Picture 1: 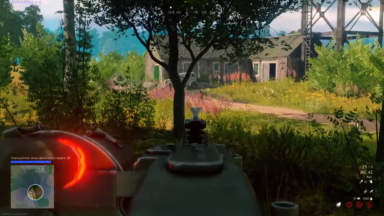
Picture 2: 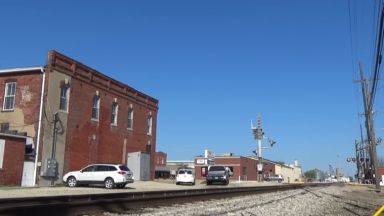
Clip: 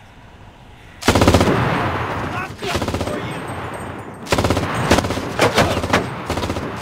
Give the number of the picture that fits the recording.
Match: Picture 1